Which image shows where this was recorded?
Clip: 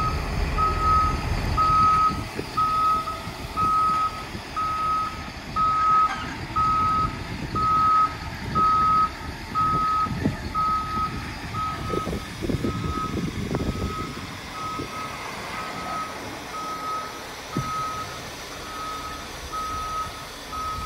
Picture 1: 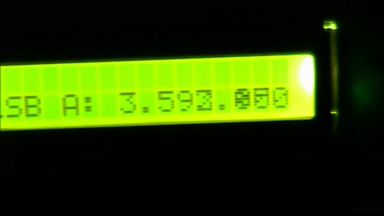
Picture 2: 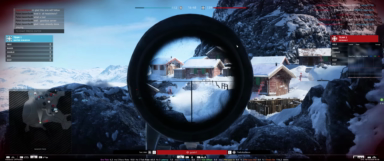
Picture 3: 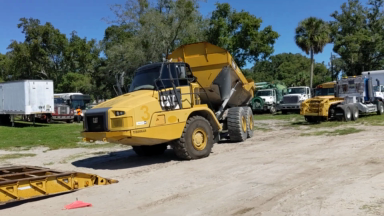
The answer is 3